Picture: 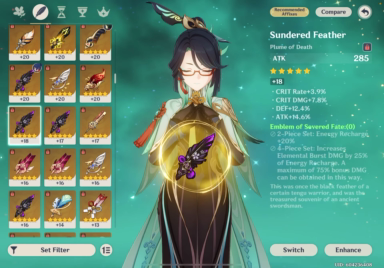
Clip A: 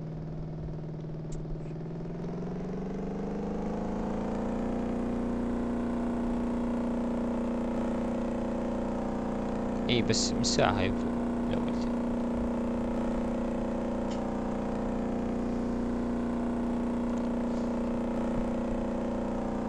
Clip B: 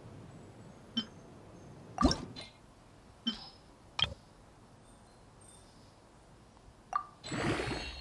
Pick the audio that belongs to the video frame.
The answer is B